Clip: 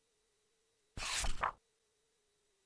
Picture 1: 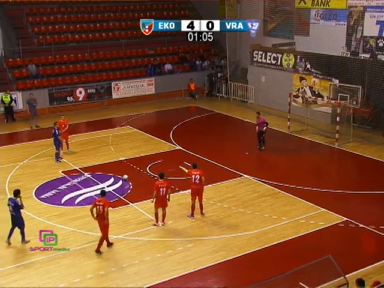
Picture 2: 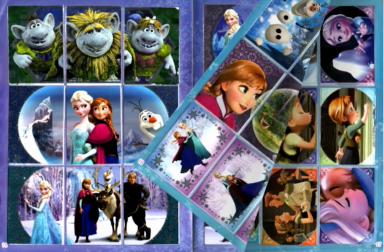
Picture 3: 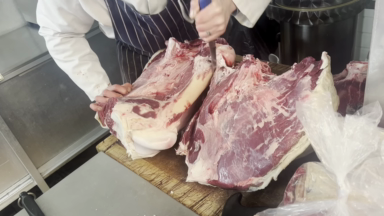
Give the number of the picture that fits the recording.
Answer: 2